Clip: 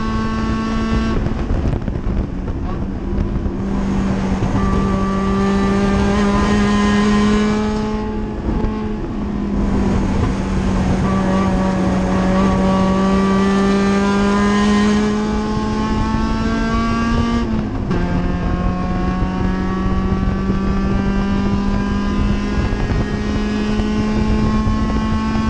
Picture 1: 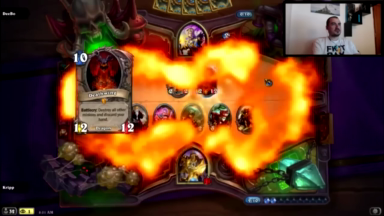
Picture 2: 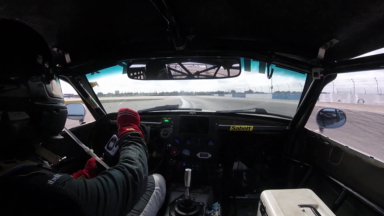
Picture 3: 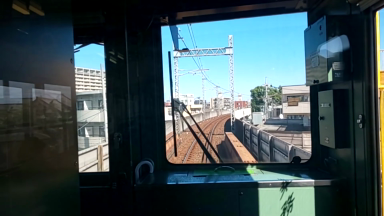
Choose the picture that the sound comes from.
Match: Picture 2